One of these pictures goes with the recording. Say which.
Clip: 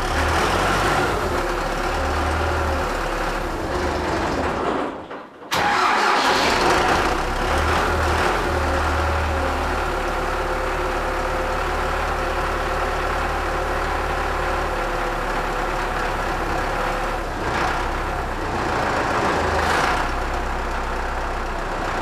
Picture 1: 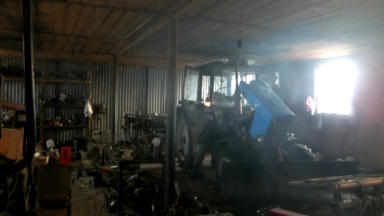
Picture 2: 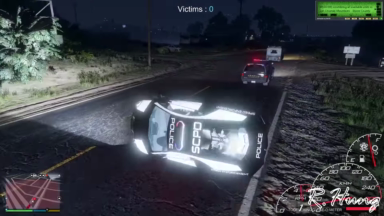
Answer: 1